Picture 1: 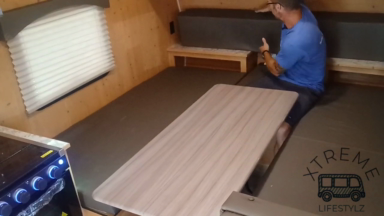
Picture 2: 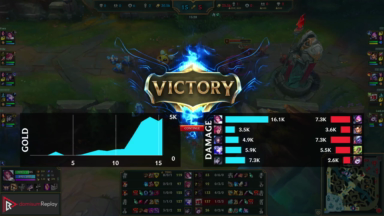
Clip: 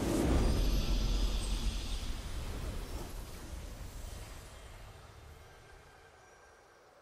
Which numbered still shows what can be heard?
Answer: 2